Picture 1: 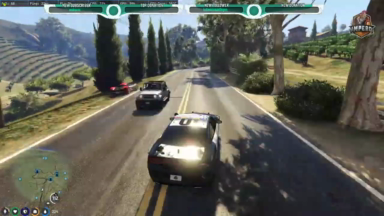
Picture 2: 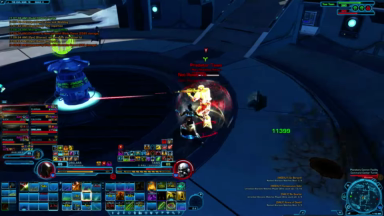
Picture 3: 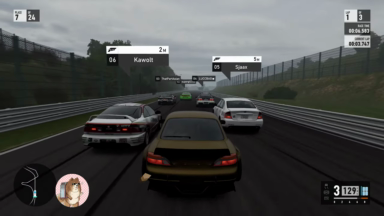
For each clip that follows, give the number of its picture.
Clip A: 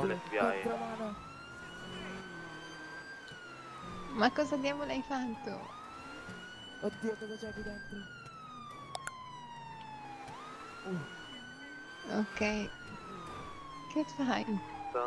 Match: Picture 1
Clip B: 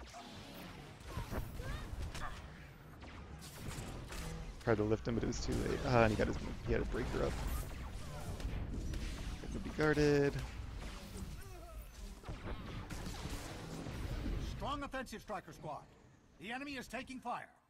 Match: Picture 2